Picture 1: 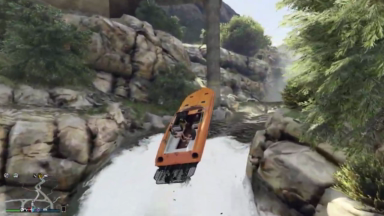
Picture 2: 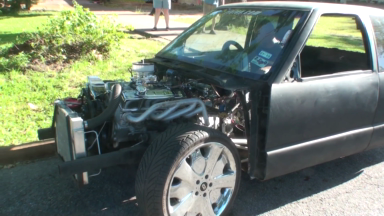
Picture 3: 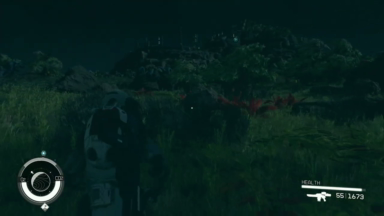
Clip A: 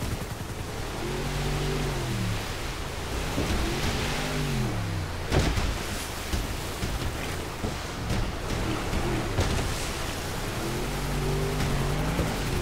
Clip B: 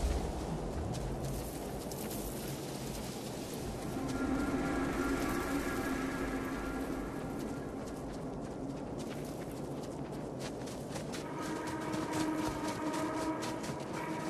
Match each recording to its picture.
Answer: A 1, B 3